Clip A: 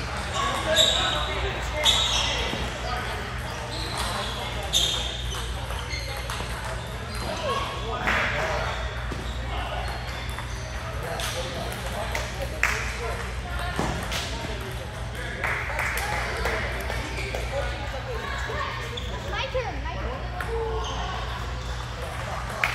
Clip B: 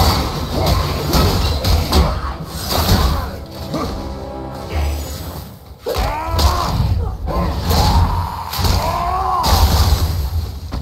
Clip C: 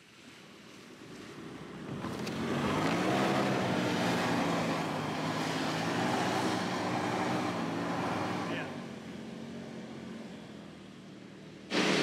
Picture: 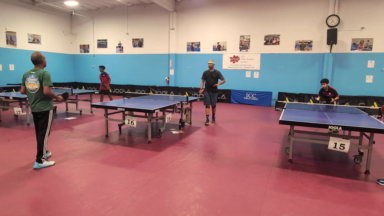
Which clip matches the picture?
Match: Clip A